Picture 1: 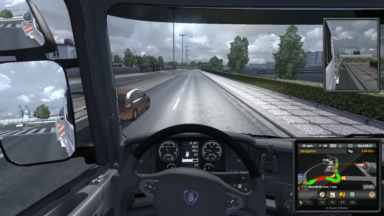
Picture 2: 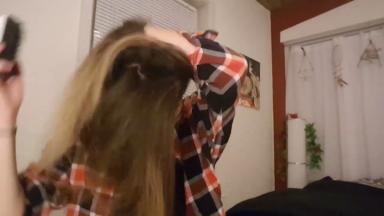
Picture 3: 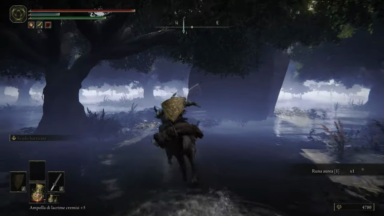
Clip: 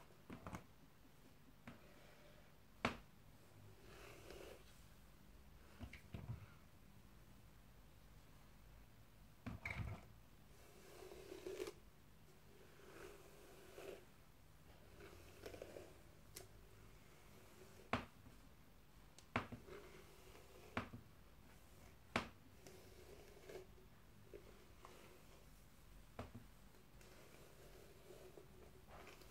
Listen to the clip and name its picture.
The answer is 2